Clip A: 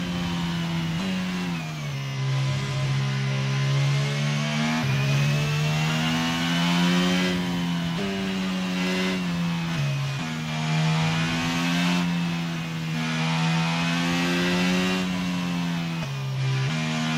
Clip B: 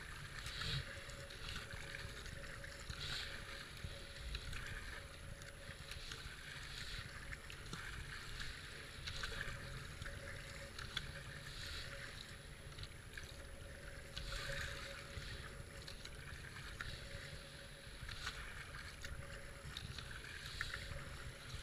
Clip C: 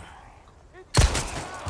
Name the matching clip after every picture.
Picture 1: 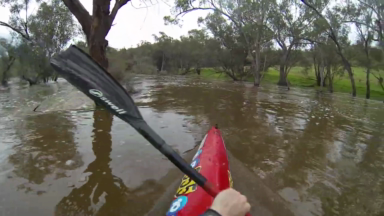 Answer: B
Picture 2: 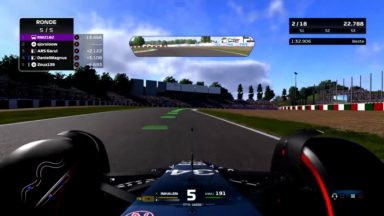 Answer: A